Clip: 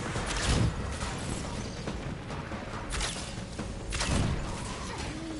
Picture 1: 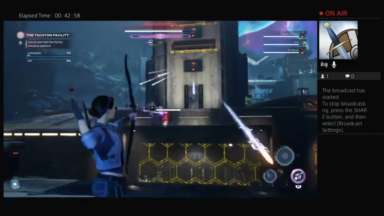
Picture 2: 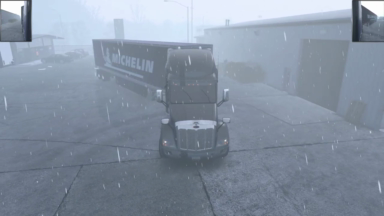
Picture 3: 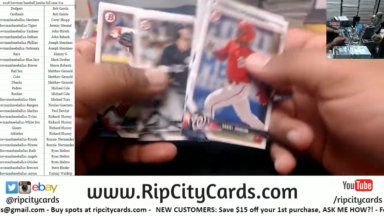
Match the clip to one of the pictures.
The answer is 1